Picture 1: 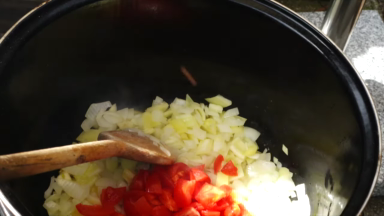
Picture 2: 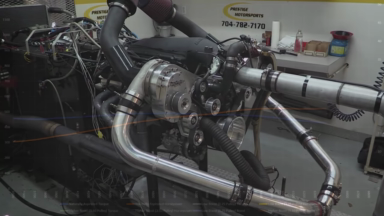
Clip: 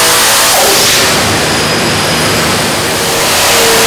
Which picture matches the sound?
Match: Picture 2